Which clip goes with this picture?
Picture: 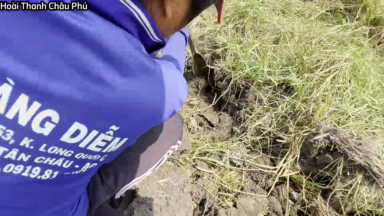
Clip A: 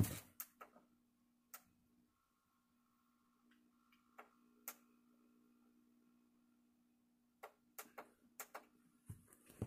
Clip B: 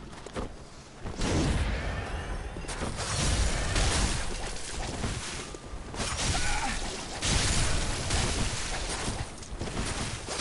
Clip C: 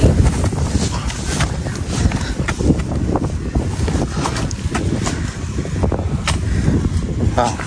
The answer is C